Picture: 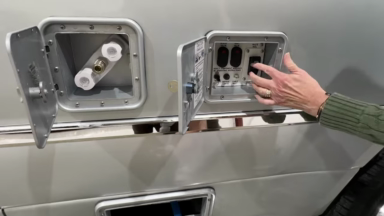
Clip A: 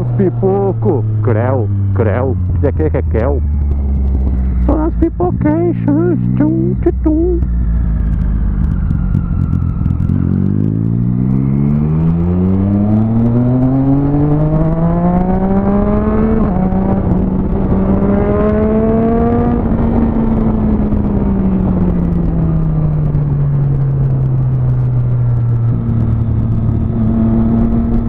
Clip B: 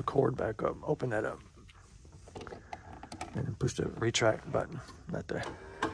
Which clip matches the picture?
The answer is B